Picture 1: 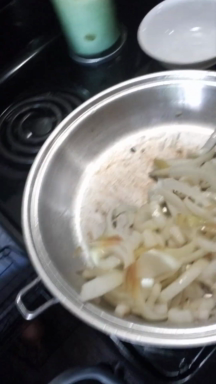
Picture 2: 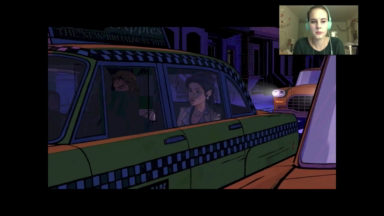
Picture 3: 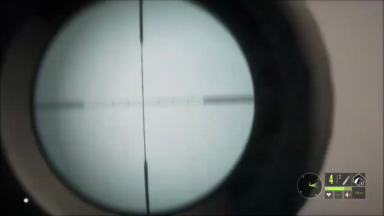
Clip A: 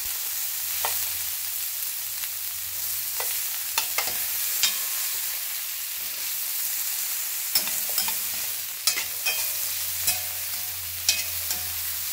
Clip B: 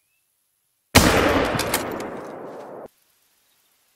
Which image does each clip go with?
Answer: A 1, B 3